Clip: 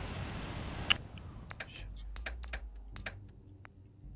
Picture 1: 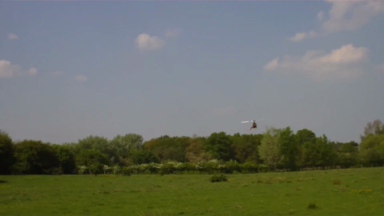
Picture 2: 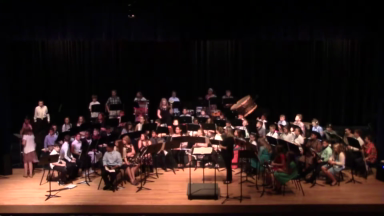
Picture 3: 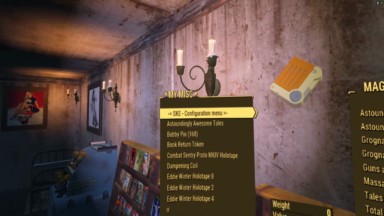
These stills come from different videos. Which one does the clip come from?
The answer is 3